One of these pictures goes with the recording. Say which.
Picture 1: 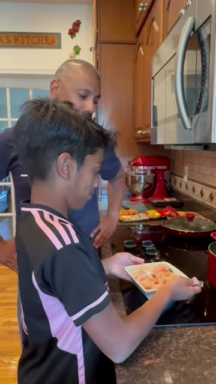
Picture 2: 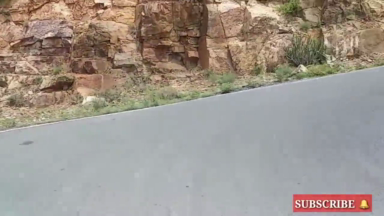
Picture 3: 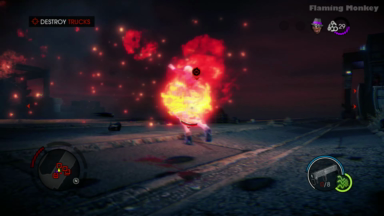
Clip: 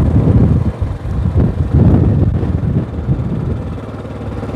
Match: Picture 2